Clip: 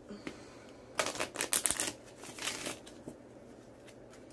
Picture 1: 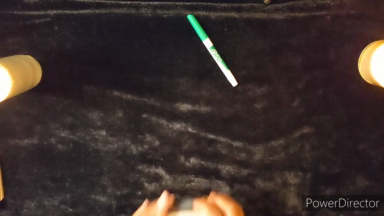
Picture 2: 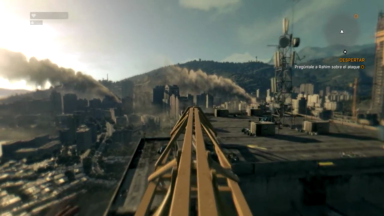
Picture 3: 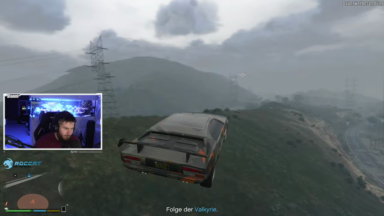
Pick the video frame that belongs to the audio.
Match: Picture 1